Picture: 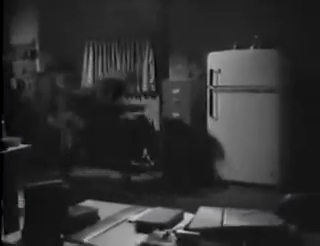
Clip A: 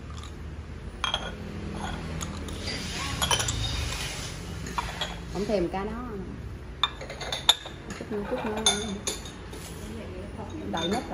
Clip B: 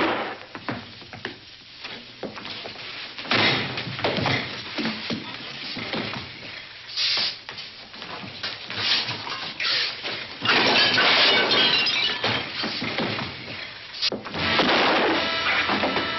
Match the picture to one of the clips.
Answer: B